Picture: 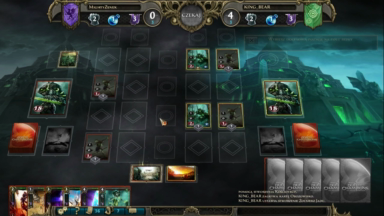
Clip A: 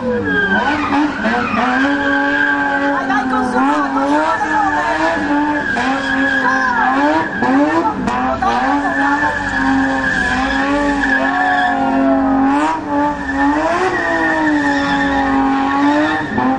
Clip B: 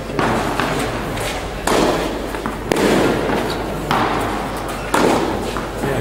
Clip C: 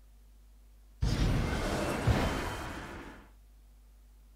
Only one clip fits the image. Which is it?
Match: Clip C